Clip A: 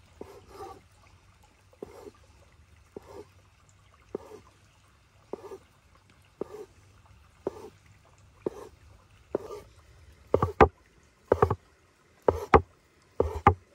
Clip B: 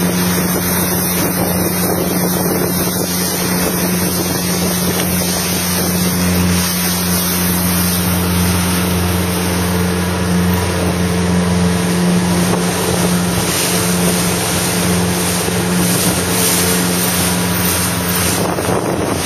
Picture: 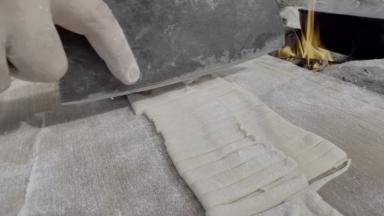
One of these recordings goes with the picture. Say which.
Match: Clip A